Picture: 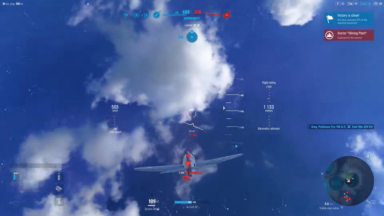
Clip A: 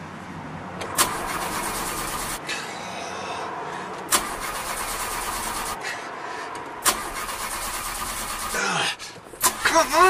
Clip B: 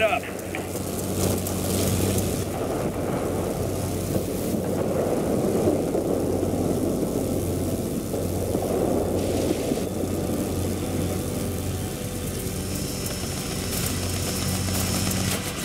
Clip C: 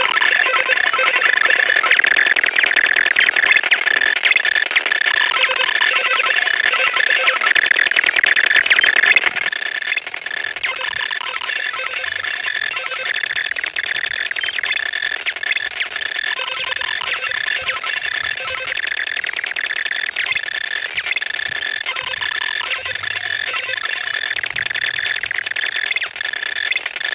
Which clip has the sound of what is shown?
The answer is B